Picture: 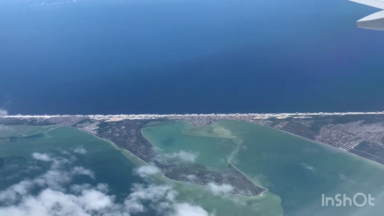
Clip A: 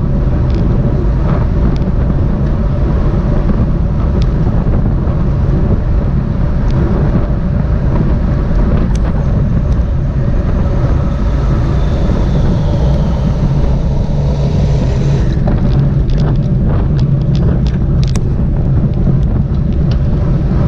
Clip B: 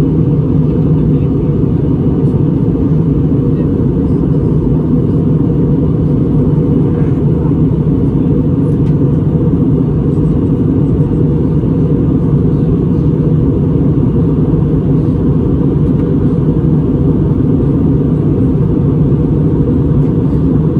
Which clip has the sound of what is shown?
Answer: B